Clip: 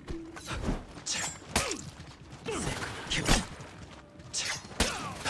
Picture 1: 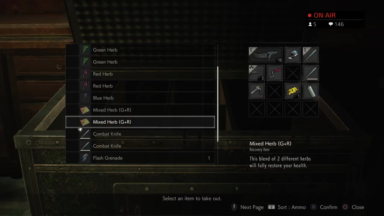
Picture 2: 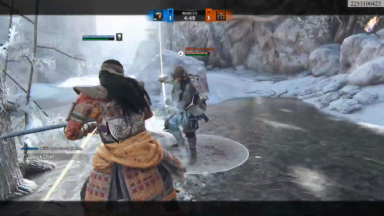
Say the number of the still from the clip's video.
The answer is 2